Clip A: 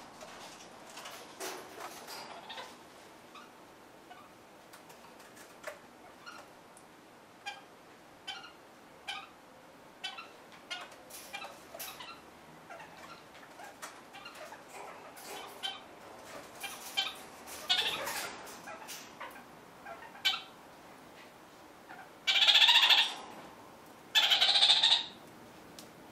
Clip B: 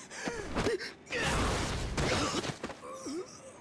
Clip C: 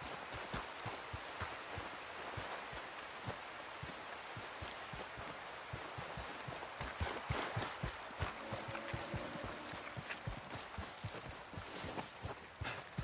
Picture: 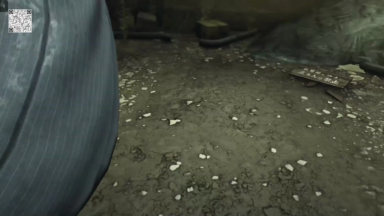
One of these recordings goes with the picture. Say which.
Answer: B